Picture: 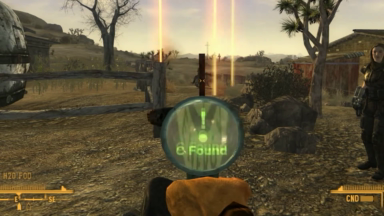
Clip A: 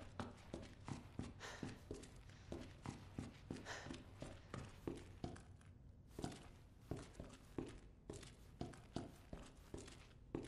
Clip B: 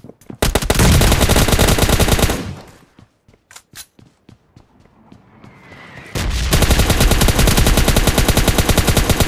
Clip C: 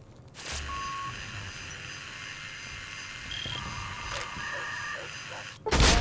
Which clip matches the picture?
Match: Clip C